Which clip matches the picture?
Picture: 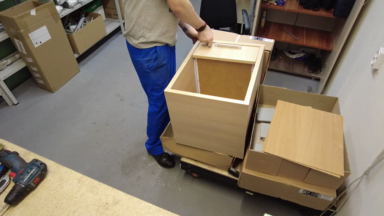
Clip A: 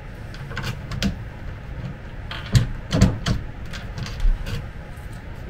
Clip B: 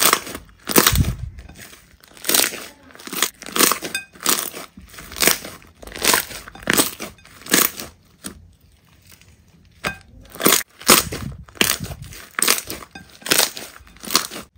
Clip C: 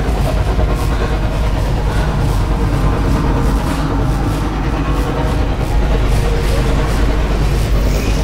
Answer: A